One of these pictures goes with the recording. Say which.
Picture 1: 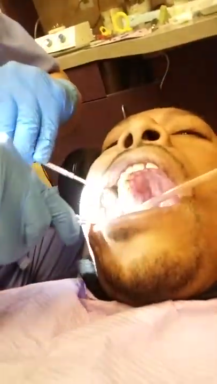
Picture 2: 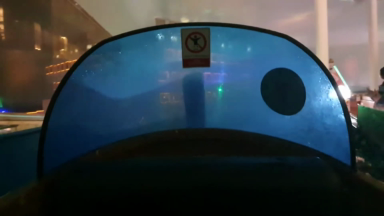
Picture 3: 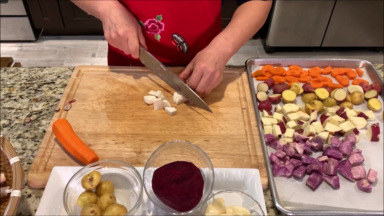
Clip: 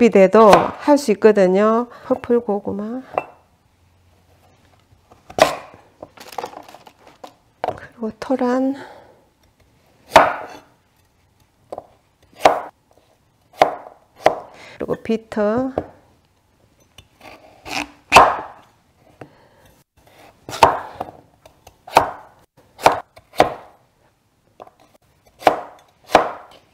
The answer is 3